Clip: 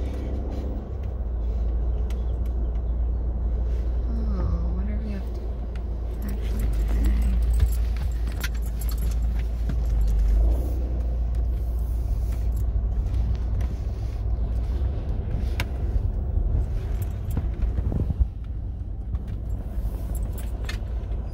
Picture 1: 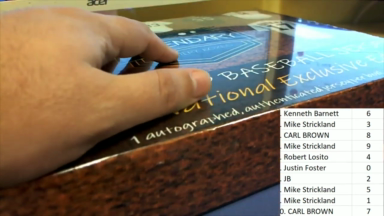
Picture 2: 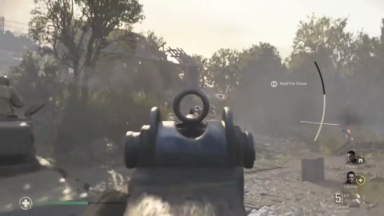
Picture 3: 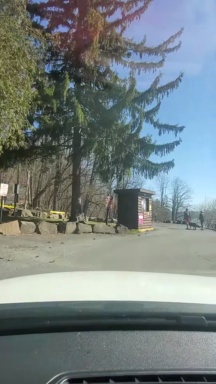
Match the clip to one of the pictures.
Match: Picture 3